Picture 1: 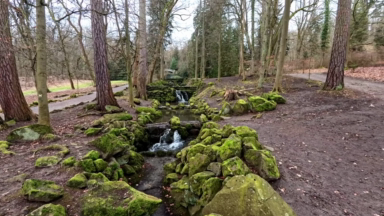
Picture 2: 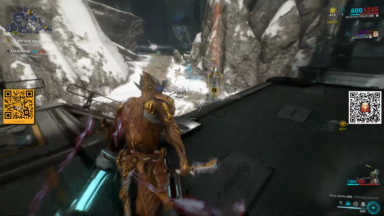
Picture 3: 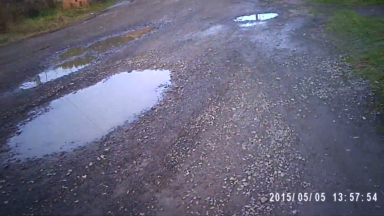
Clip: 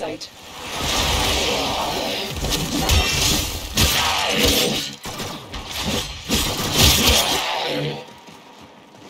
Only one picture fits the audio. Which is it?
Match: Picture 2